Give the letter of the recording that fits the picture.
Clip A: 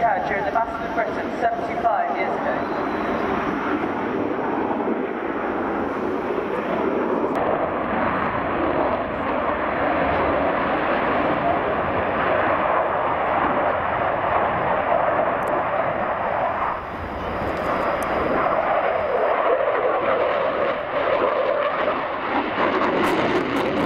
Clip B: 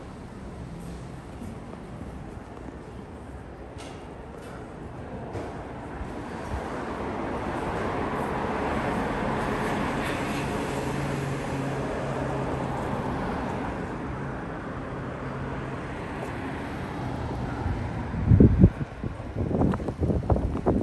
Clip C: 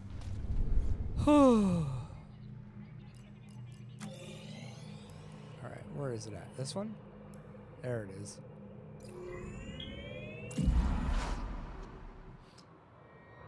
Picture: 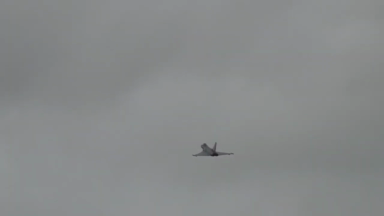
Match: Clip A